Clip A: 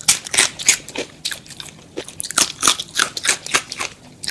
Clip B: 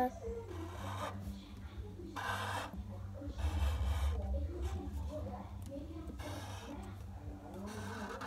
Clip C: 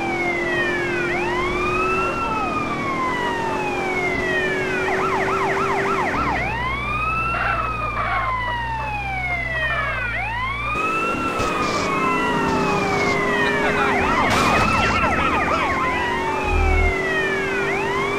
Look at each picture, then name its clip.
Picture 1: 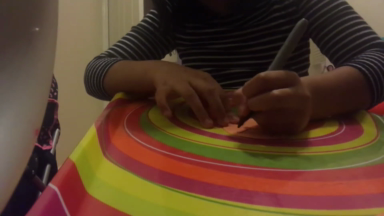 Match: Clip B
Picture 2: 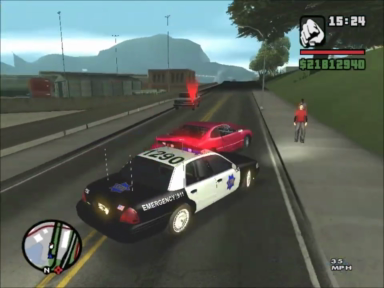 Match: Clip C